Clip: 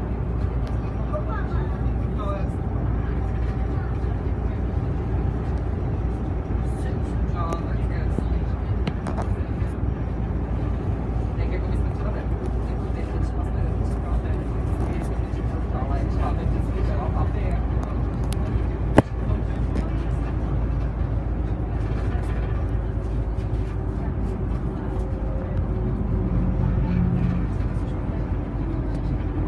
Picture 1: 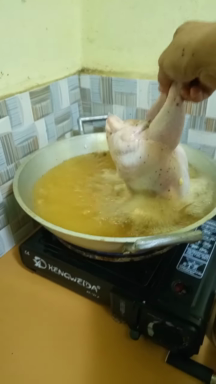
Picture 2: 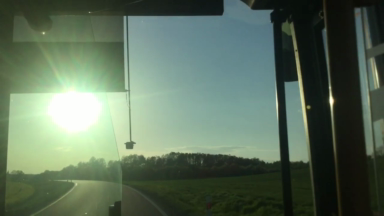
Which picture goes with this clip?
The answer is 2